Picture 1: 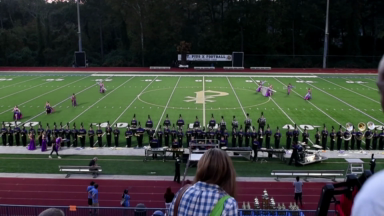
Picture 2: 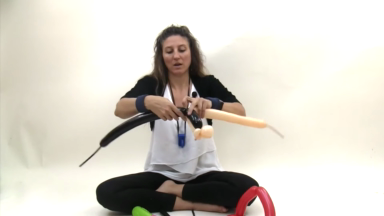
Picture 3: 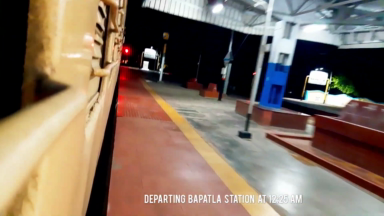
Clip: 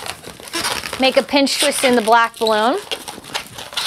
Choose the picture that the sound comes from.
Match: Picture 2